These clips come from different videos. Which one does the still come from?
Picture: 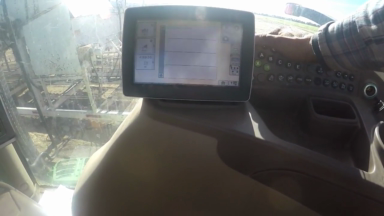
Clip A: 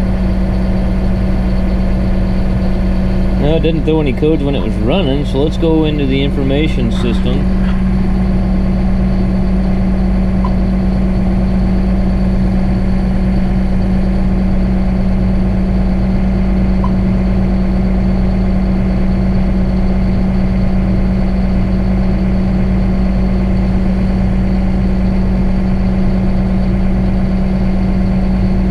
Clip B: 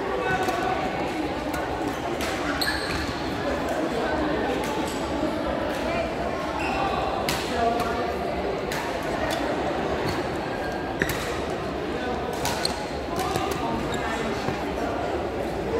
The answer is A